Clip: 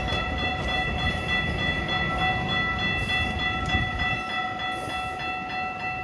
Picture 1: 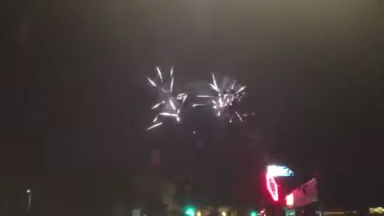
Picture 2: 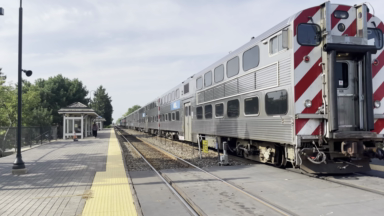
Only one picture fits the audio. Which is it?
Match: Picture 2